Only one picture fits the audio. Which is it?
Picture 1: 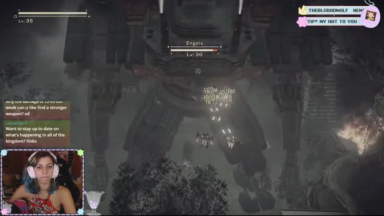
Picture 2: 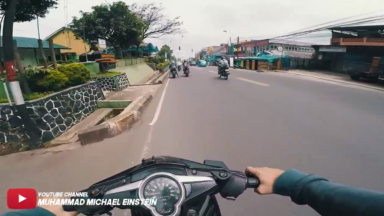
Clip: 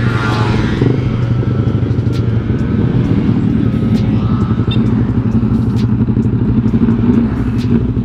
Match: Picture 2